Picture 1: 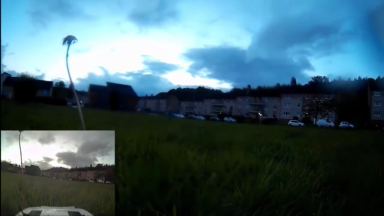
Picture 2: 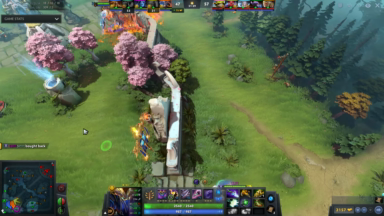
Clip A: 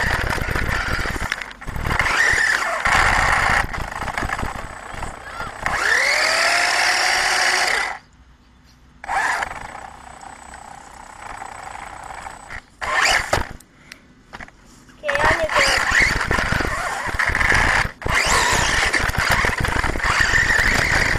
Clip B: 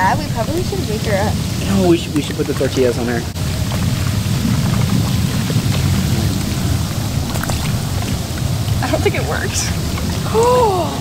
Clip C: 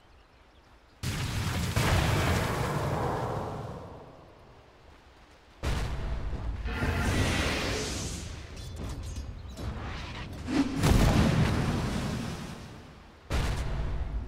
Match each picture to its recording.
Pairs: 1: A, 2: C